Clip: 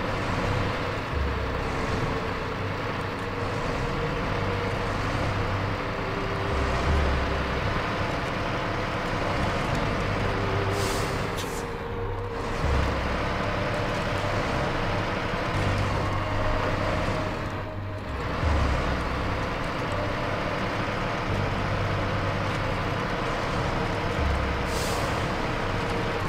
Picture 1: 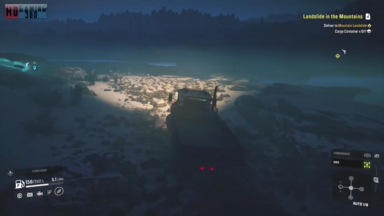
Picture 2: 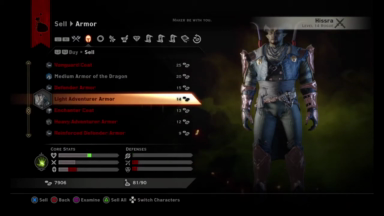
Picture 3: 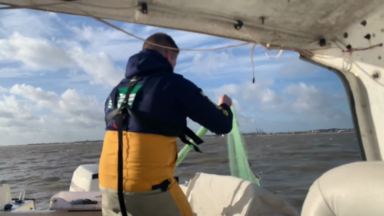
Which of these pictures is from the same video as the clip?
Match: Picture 1